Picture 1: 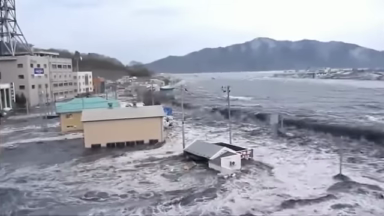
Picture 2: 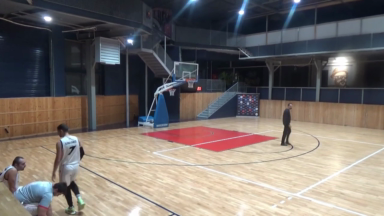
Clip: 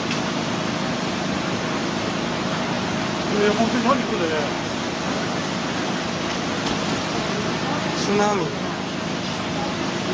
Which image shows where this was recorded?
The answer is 1